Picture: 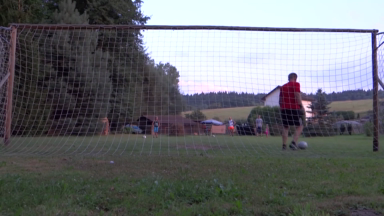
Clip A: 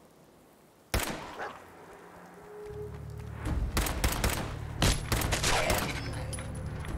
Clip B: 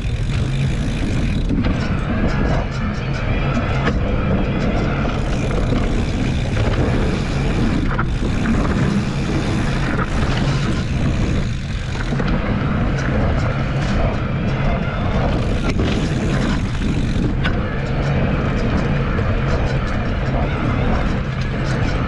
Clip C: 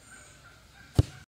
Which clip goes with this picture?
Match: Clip C